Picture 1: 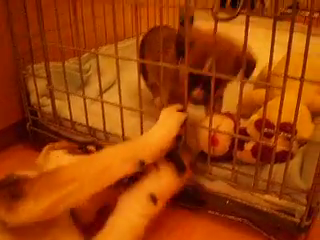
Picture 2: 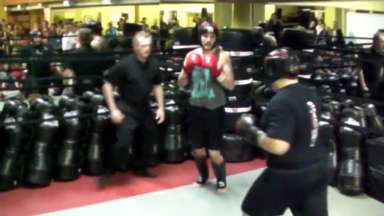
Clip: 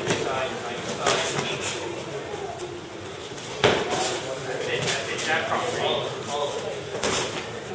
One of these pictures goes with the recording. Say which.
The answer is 2